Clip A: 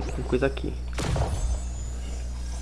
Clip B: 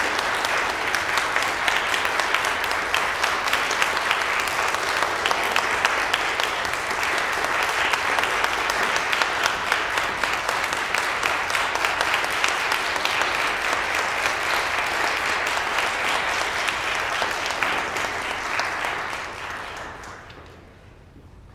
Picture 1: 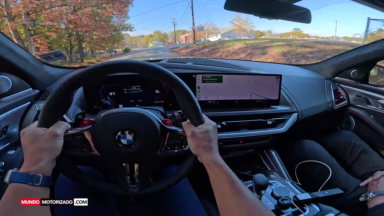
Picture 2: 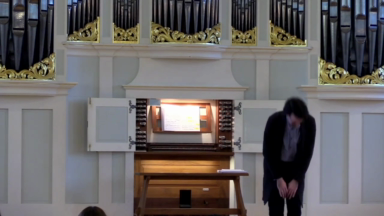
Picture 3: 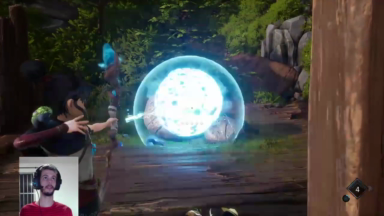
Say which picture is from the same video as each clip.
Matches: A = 3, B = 2